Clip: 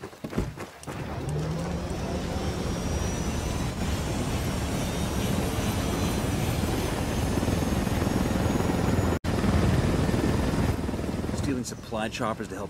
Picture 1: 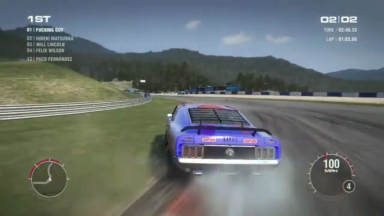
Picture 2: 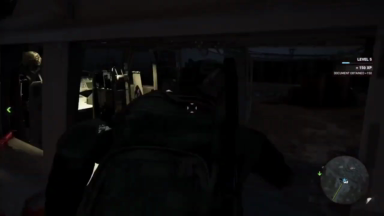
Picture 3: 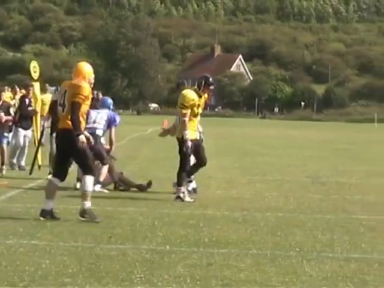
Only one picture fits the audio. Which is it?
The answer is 2